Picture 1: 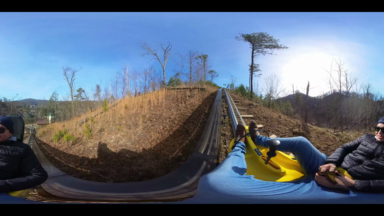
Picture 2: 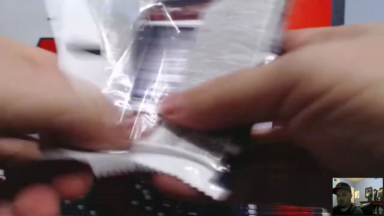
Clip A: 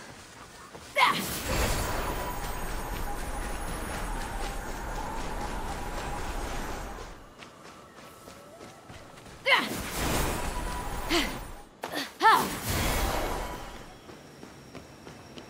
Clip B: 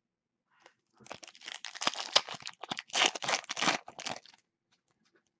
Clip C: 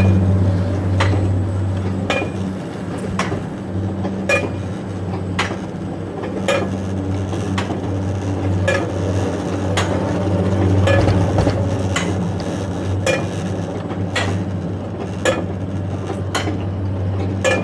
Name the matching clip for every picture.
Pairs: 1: C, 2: B